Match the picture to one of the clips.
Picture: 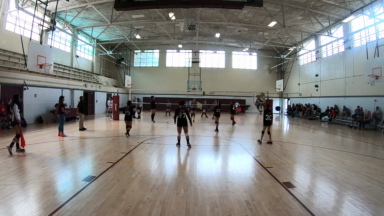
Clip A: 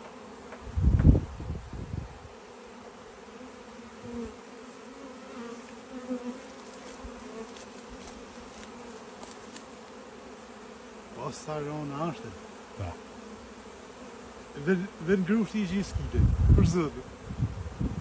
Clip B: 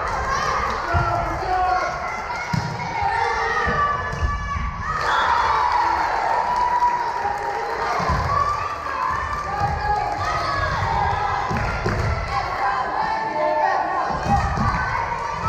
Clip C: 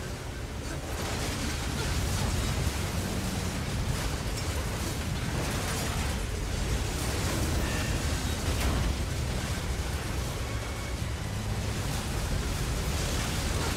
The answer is B